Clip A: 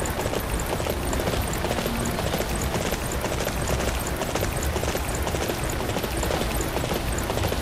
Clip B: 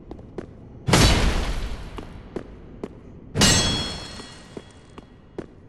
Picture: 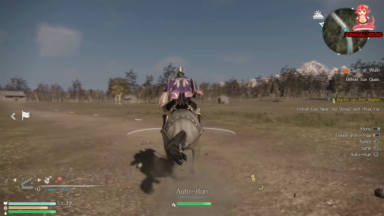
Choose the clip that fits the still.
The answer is A